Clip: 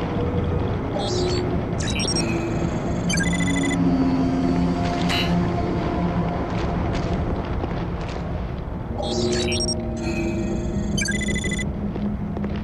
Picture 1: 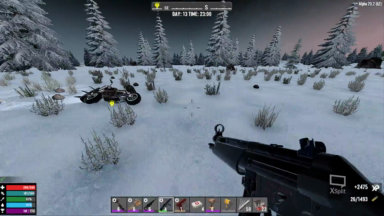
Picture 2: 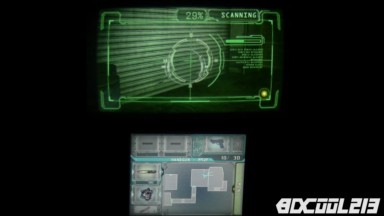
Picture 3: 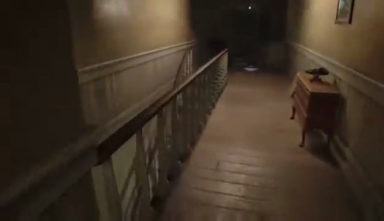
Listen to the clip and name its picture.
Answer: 2